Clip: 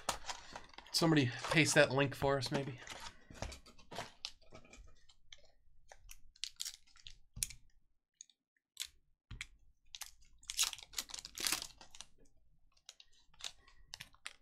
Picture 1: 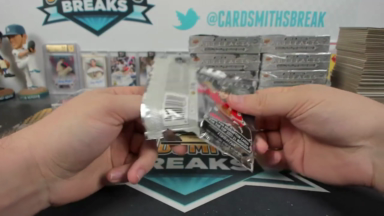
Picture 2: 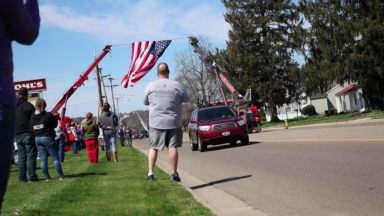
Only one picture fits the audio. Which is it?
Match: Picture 1